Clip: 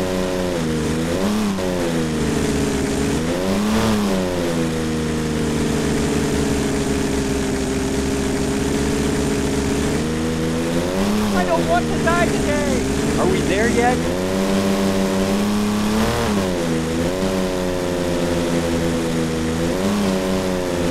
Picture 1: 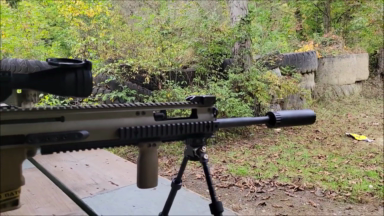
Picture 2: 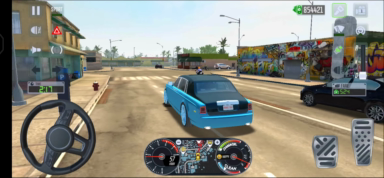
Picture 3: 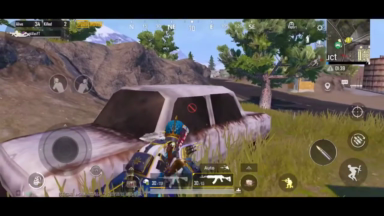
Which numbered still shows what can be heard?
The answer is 2